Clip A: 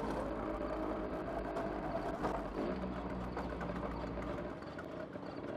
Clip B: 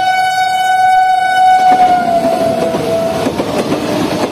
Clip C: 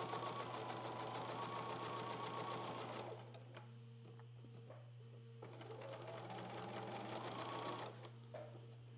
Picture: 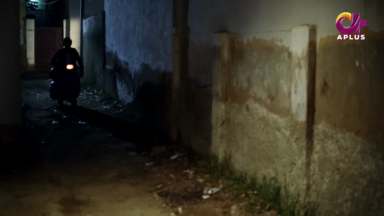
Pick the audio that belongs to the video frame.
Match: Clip A